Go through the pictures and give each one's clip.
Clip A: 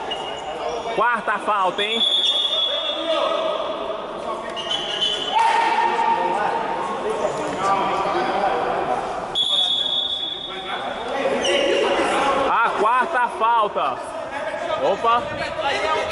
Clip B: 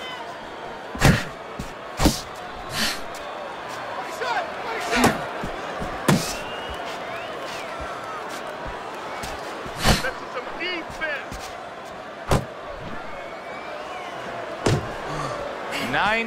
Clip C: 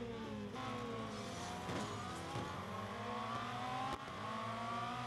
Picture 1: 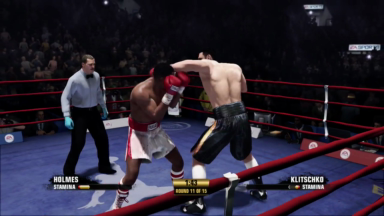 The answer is B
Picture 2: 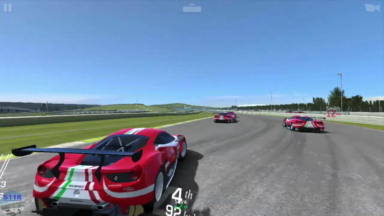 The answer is C